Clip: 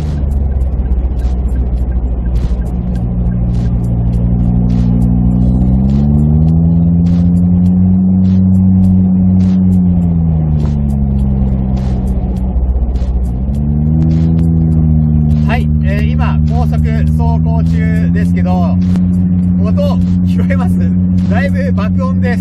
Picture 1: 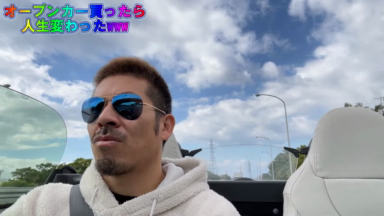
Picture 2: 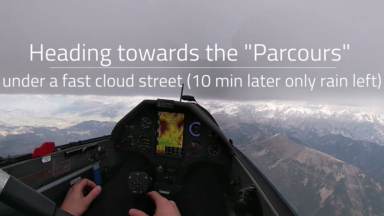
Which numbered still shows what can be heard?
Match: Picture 1